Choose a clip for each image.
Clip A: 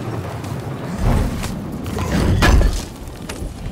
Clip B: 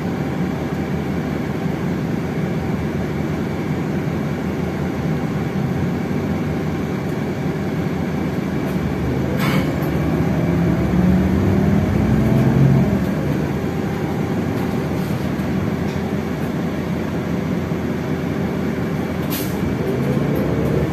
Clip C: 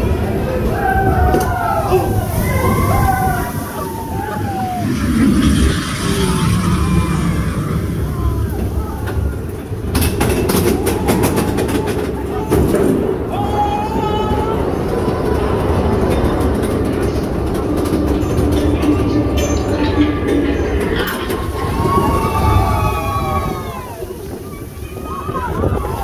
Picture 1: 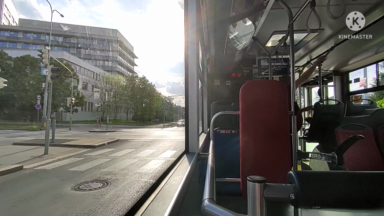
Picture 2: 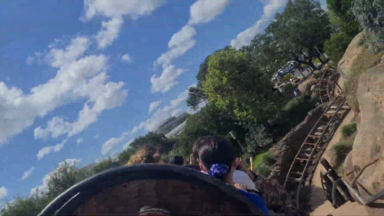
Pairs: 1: B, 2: C